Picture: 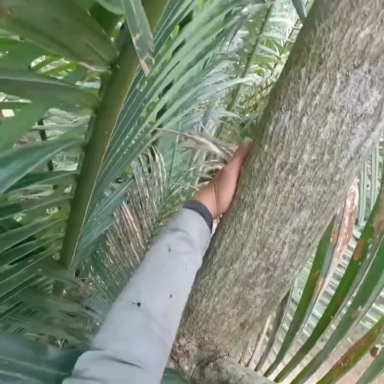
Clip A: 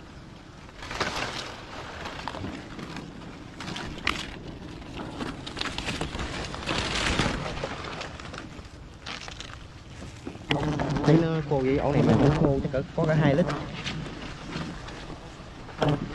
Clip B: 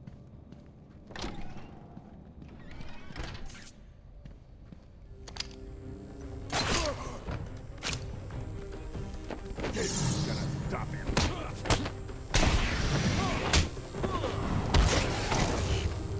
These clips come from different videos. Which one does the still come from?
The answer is A